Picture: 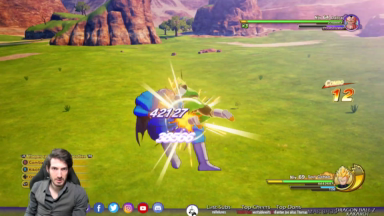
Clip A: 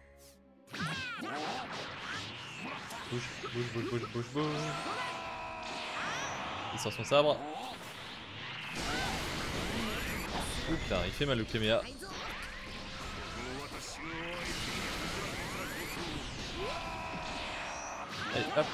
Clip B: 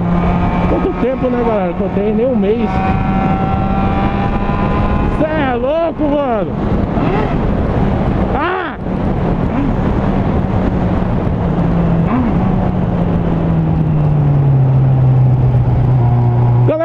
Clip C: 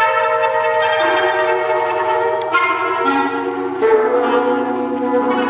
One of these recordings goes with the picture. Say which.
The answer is A